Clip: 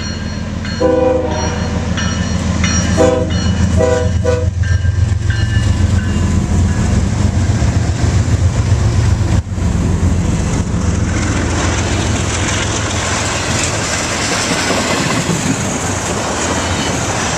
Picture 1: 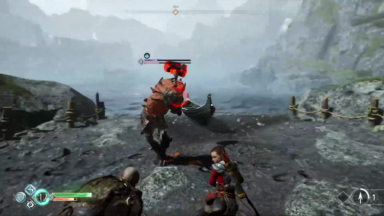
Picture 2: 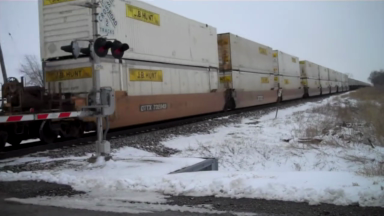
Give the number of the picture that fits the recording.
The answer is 2